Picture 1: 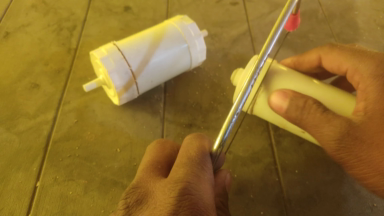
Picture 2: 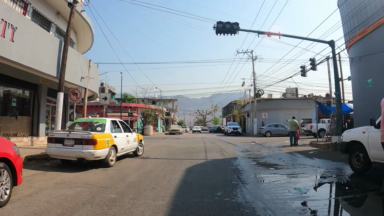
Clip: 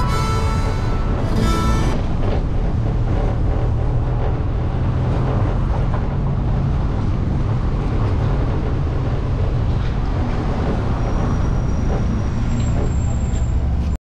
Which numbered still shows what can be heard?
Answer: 2